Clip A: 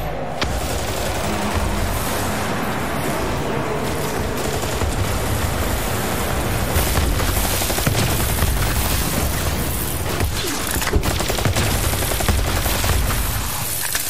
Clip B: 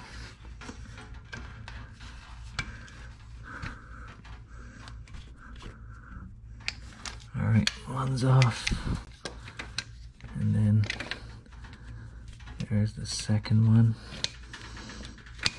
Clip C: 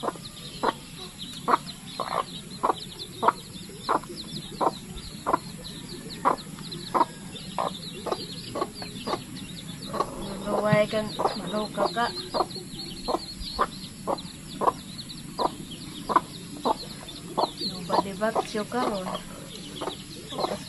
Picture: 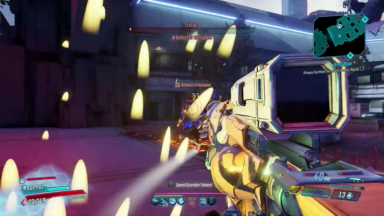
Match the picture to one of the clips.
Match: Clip A